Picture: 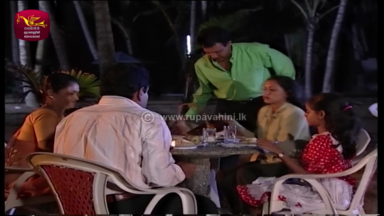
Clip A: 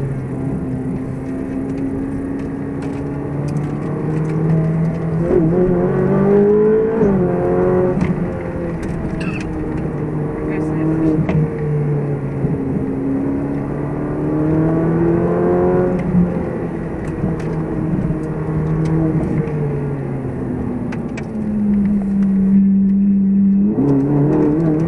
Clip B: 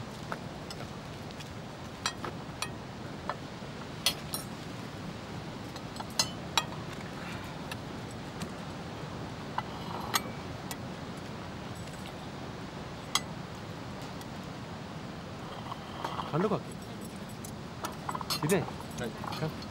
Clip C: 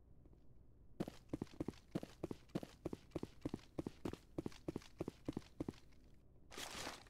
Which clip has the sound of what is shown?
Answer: B